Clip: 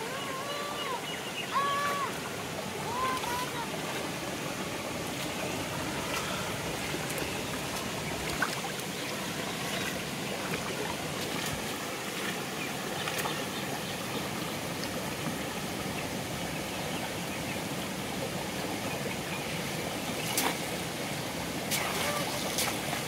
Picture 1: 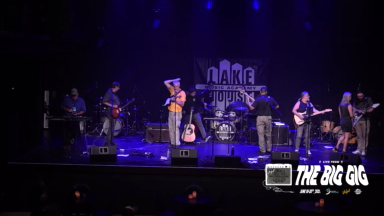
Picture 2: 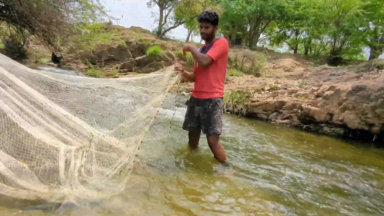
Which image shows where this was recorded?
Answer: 2